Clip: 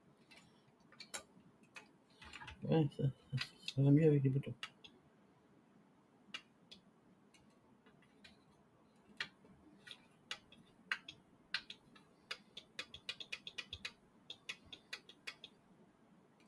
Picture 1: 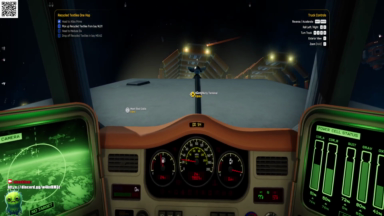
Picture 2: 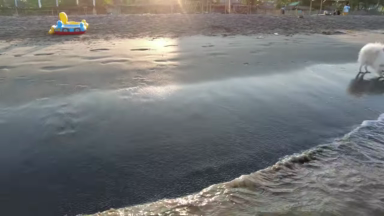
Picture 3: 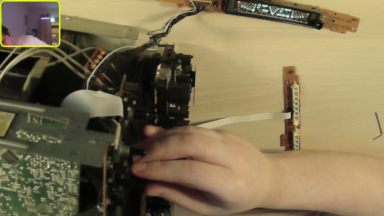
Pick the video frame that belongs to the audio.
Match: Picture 3